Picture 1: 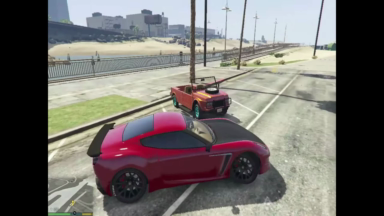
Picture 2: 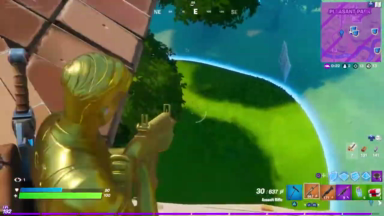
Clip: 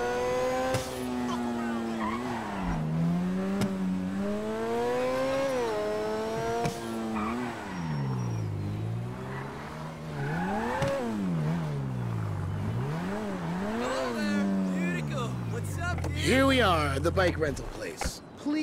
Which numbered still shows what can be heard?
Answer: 1